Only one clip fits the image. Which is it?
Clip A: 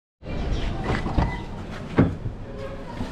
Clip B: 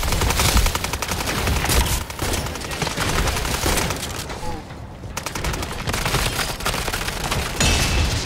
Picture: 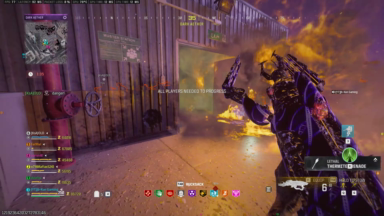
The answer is B